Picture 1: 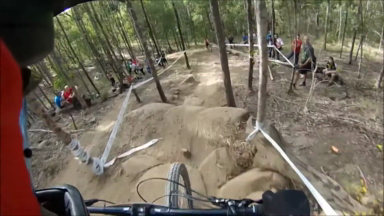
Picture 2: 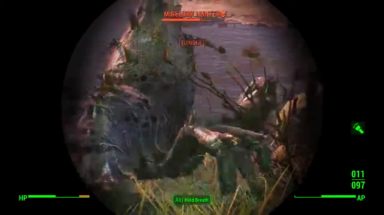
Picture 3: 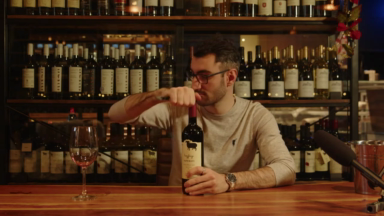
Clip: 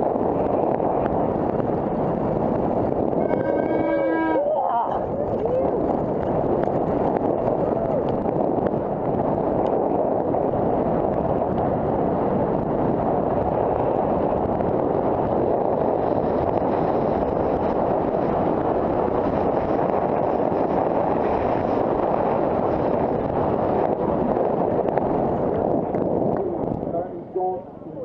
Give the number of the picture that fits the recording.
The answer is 1